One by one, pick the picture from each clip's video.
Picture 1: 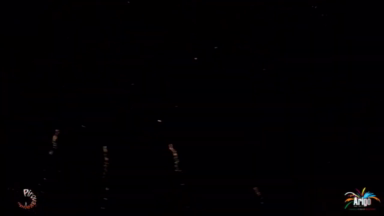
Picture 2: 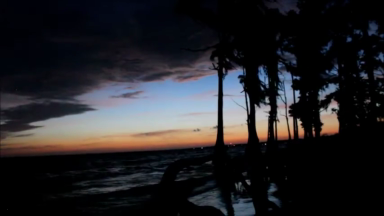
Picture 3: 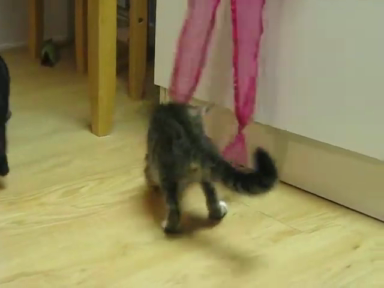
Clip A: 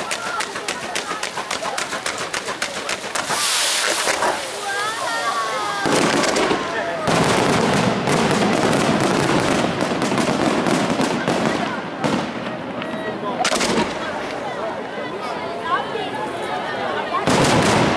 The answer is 1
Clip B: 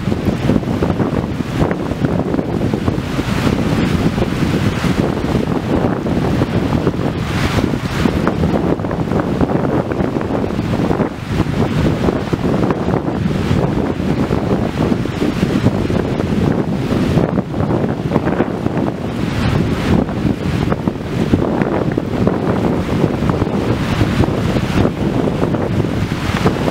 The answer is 2